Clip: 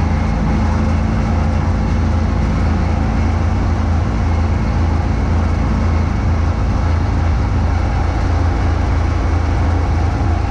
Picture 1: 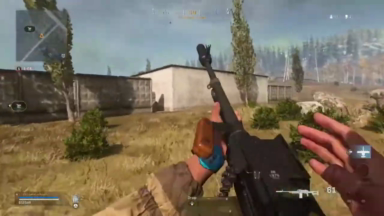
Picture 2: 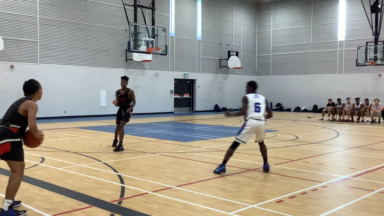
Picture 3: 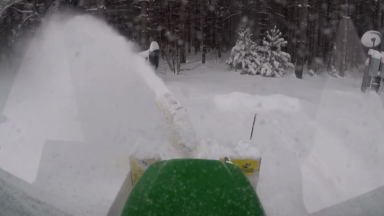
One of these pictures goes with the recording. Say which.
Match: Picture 3